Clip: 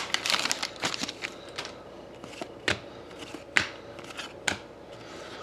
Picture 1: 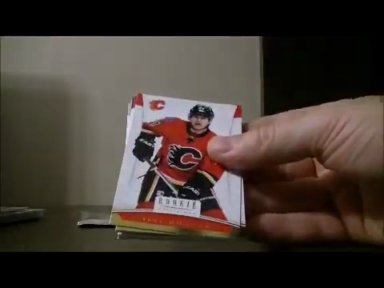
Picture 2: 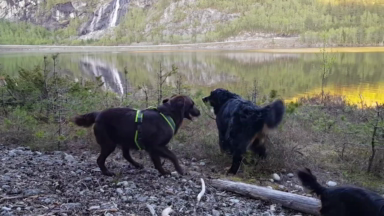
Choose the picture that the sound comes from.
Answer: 1